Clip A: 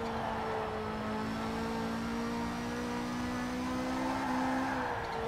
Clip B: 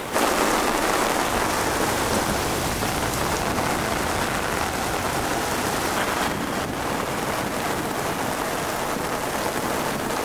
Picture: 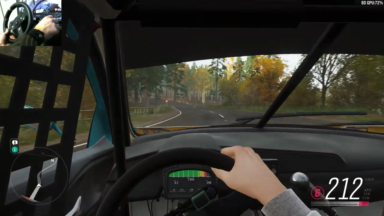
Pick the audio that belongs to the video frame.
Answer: A